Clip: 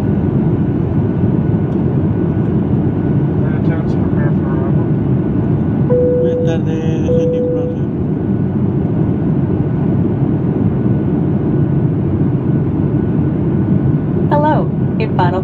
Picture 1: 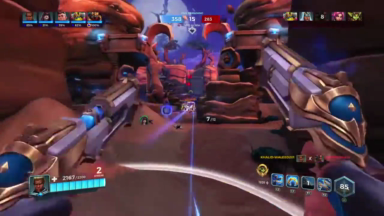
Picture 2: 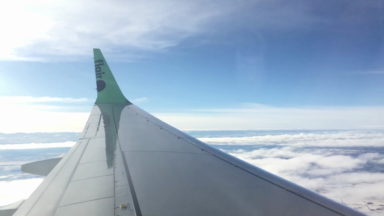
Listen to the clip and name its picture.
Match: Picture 2